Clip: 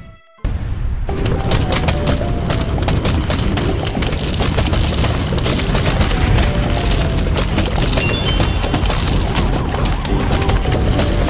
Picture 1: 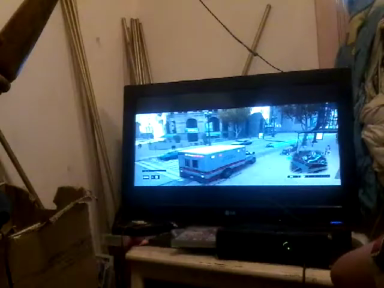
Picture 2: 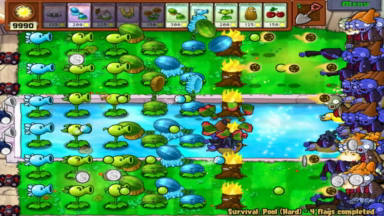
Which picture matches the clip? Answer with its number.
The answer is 2